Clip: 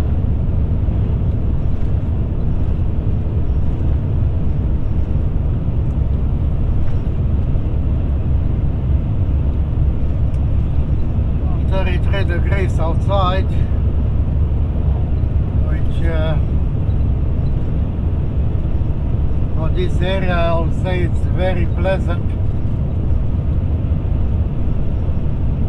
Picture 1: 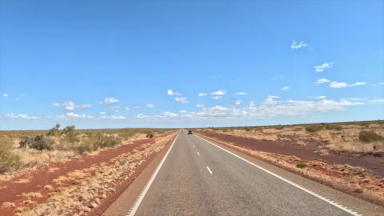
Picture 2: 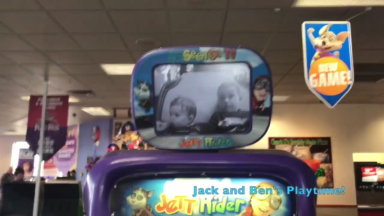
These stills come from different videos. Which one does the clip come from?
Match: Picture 1